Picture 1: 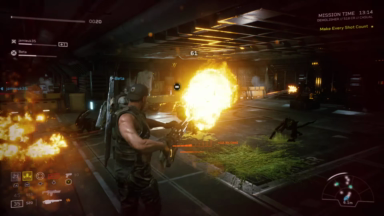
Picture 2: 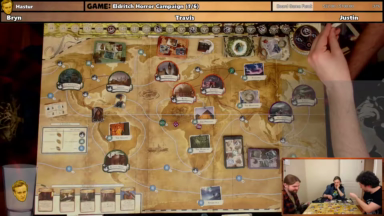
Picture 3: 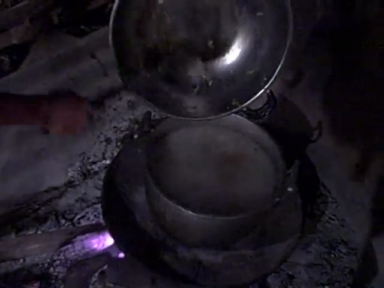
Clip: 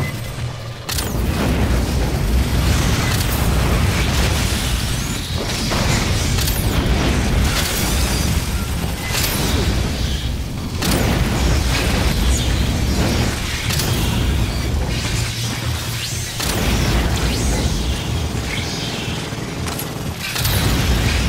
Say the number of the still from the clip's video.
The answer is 1